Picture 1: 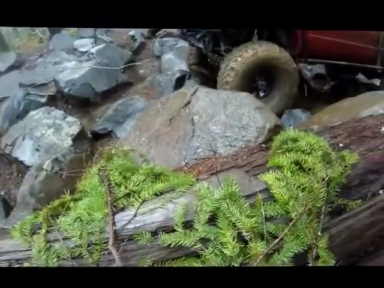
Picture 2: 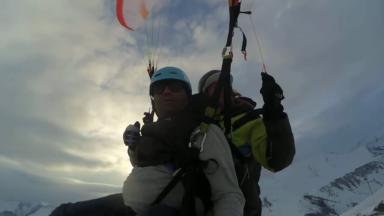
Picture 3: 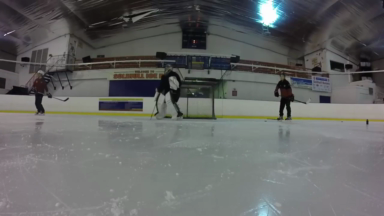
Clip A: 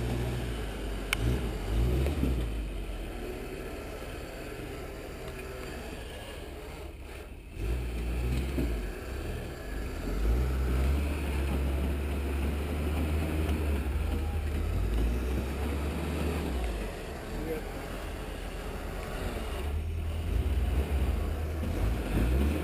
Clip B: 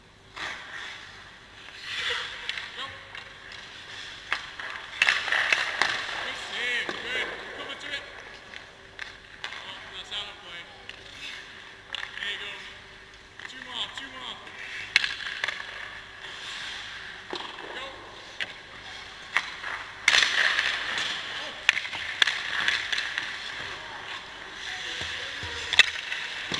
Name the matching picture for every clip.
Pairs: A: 1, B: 3